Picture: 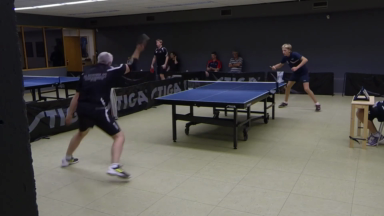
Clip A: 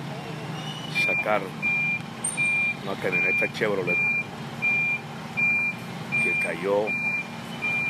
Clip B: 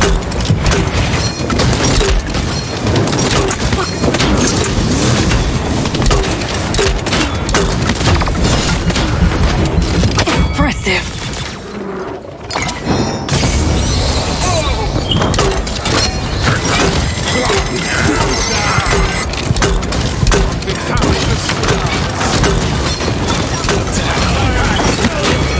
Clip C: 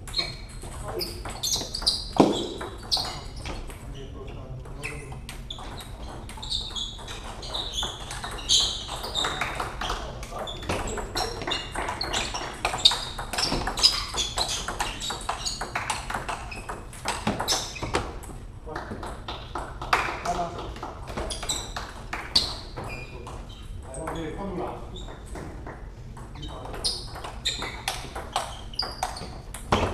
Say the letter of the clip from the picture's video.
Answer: C